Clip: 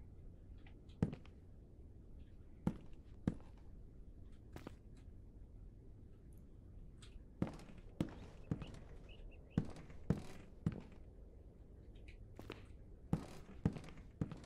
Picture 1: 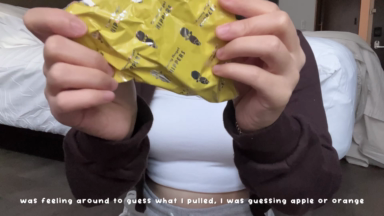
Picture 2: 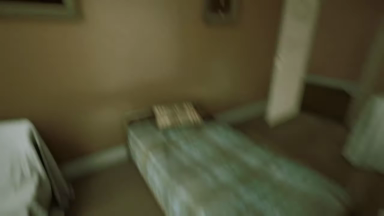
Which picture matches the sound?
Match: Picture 2